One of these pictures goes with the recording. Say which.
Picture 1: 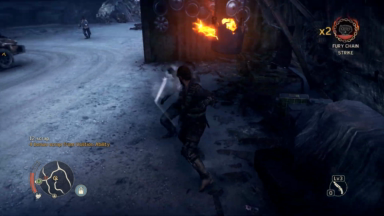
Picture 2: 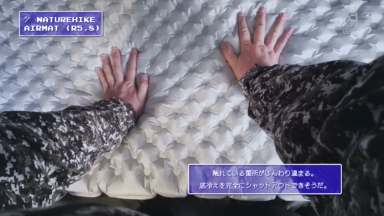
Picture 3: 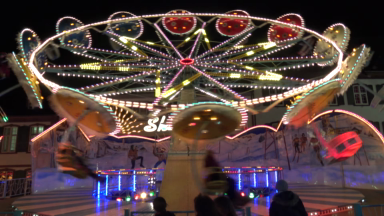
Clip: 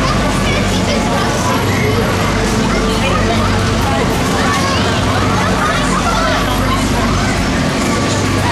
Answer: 3